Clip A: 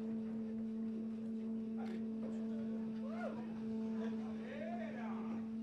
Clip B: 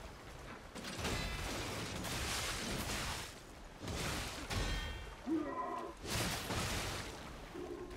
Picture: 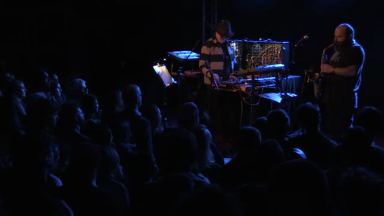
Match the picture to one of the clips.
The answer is A